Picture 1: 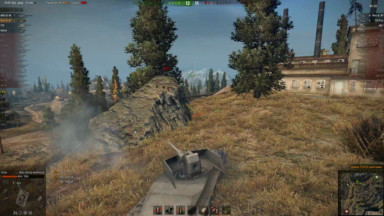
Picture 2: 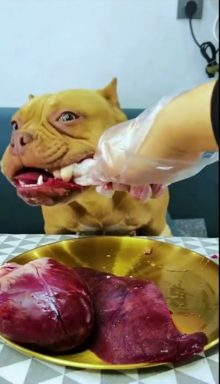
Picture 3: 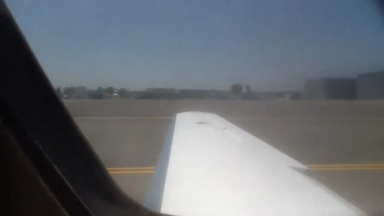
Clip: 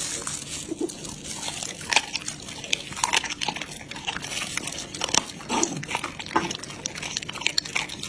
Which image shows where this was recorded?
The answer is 2